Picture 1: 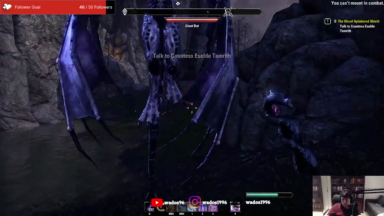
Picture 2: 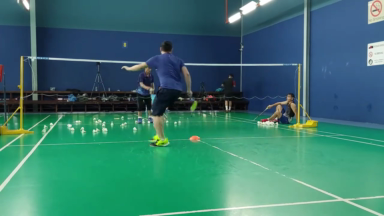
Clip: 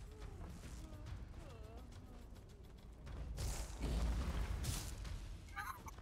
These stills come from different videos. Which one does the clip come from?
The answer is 1